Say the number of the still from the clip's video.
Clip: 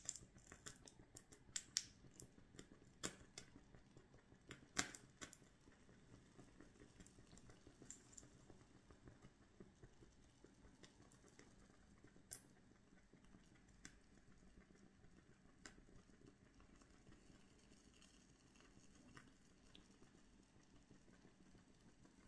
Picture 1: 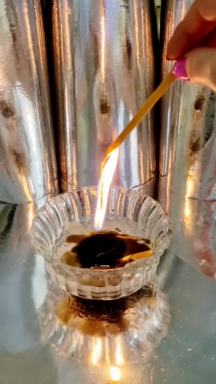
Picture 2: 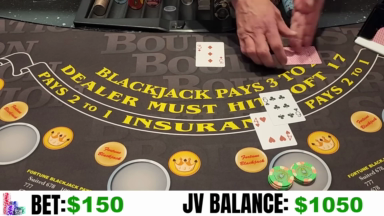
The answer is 1